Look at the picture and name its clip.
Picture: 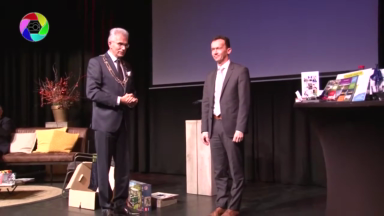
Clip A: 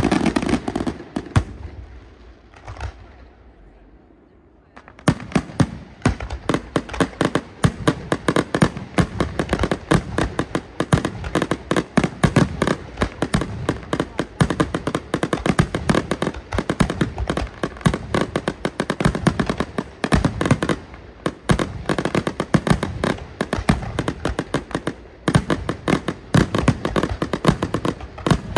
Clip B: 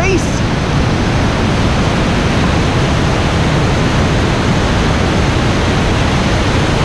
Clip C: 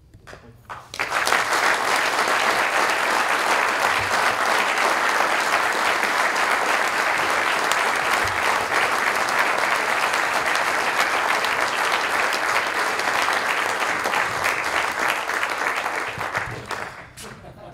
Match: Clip C